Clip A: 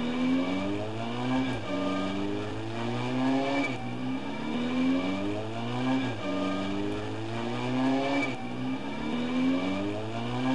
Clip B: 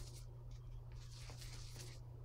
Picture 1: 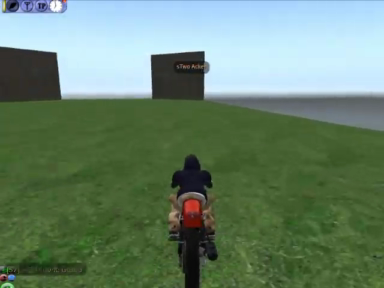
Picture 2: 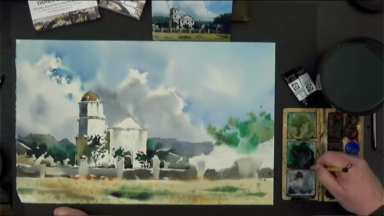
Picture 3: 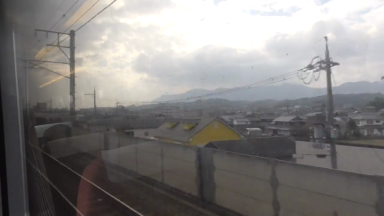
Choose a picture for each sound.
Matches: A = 1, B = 2